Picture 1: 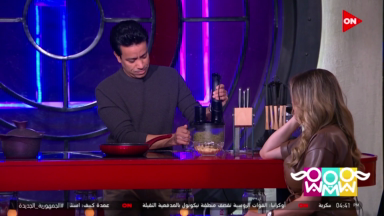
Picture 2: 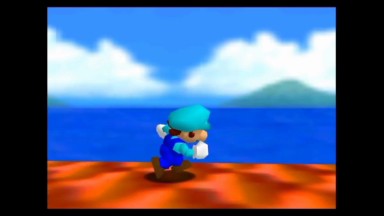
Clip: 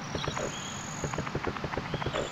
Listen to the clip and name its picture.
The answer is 2